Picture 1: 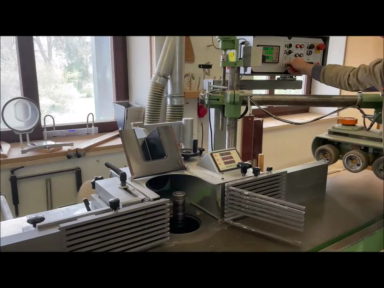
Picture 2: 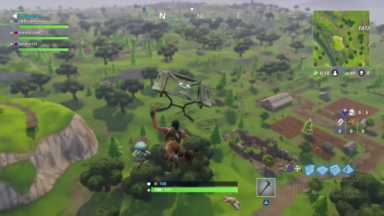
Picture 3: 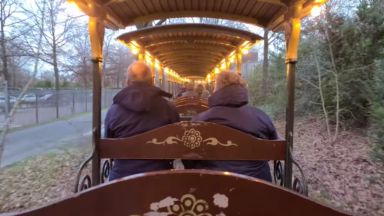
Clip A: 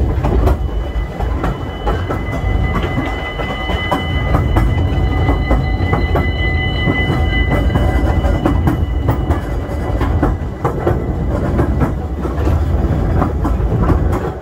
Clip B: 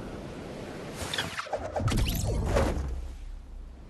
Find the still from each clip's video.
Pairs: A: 3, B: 2